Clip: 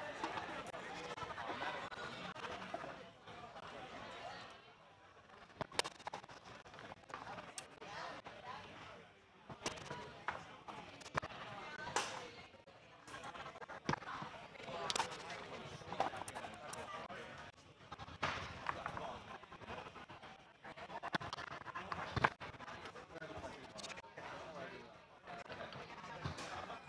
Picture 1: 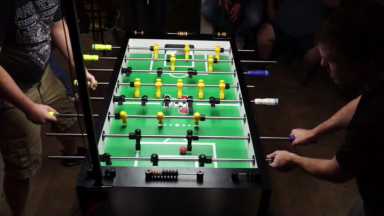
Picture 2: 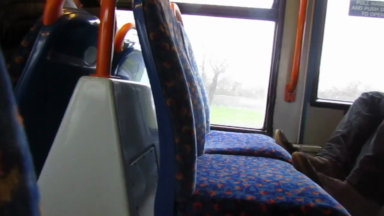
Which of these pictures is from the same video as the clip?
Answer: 1